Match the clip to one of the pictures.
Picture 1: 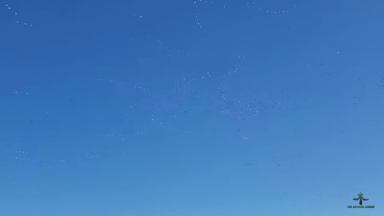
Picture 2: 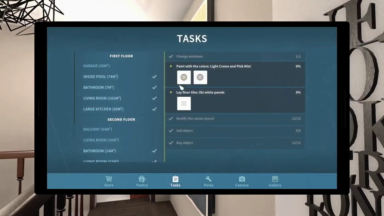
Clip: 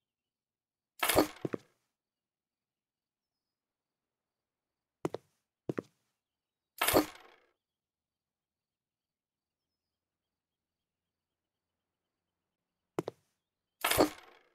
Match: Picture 2